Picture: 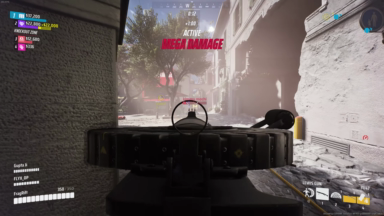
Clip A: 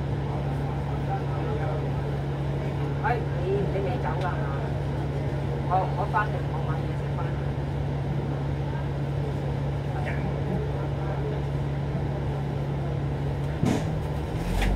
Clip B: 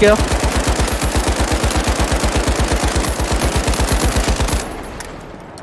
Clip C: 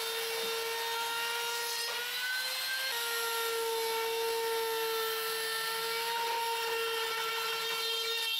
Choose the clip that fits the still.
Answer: B